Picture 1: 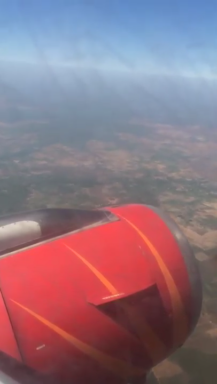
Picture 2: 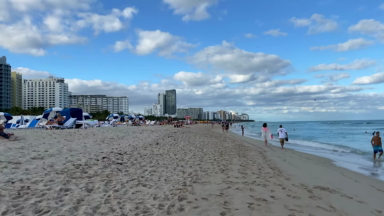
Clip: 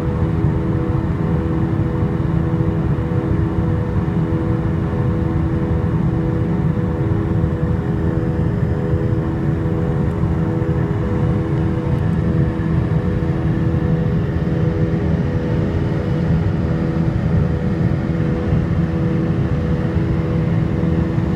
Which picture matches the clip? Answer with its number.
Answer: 1